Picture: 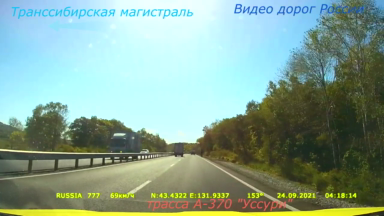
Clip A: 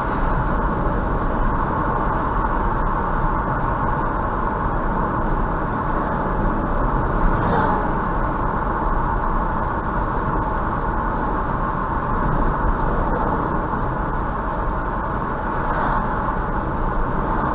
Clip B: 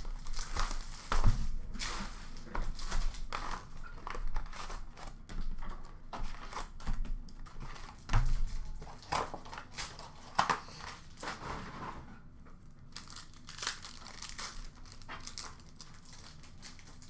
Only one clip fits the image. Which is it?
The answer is A